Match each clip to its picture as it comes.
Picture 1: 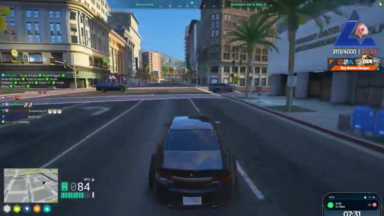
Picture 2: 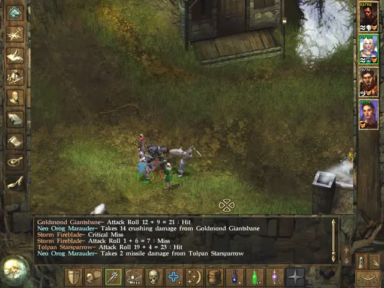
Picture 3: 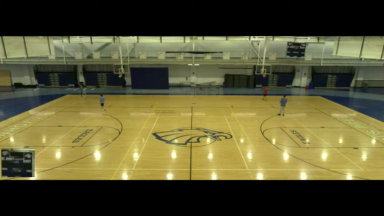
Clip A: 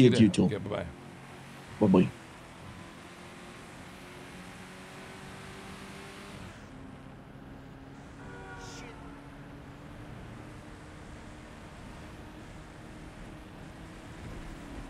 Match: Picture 1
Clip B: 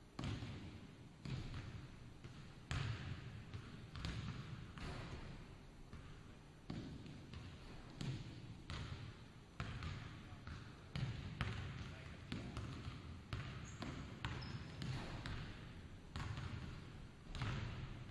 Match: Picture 3